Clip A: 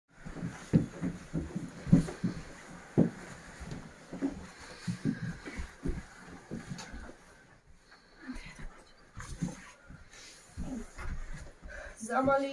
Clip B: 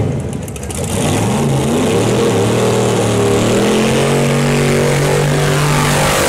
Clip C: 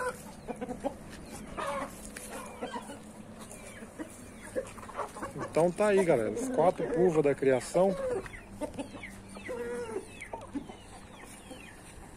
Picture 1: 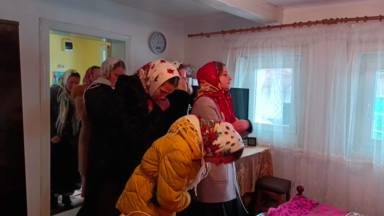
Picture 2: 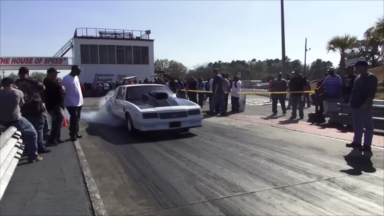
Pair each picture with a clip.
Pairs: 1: A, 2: B